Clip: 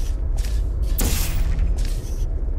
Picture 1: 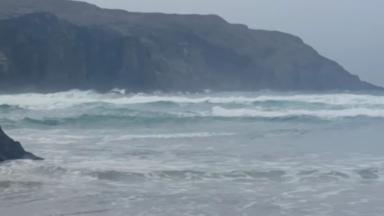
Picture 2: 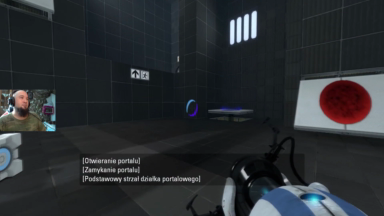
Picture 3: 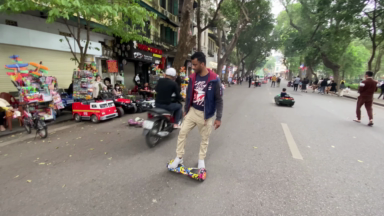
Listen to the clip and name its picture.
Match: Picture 2